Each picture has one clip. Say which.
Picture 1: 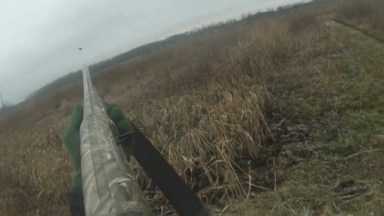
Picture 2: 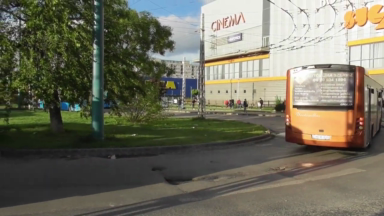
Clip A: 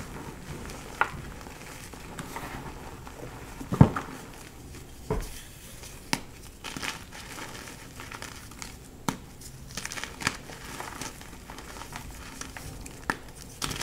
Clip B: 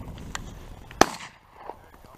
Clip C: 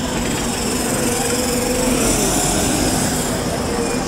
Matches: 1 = B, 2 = C